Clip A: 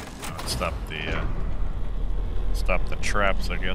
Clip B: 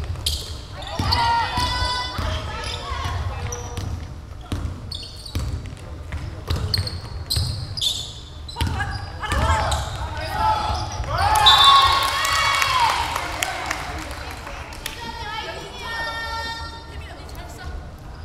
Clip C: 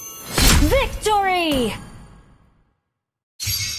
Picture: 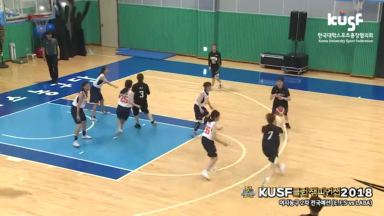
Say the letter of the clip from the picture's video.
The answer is B